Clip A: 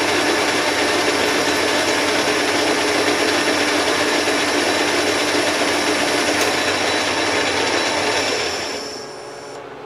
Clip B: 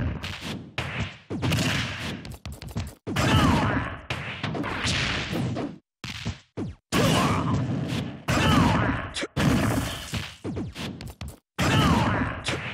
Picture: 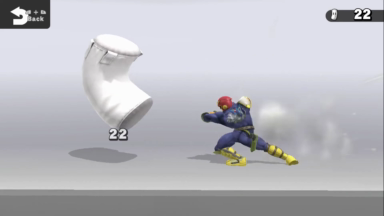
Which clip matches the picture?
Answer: B